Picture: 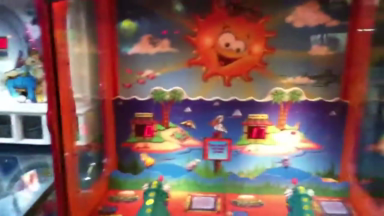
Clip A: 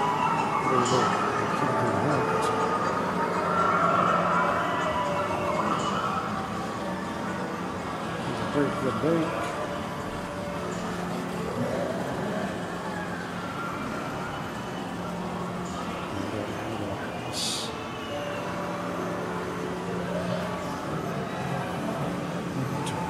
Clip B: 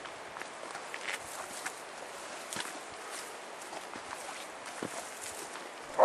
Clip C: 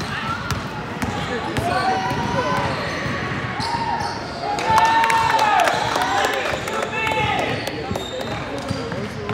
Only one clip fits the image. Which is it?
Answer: A